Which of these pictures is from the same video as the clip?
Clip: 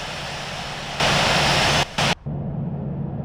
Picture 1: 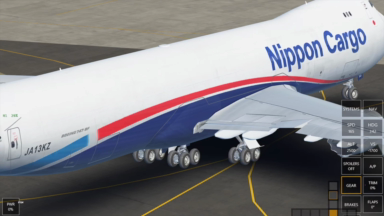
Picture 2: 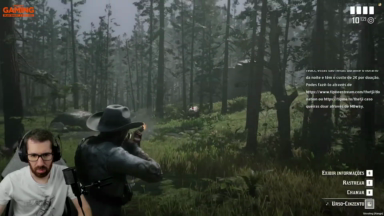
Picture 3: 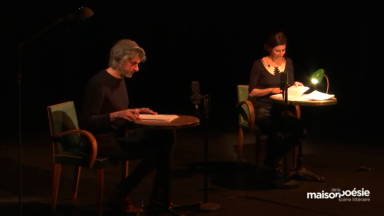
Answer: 1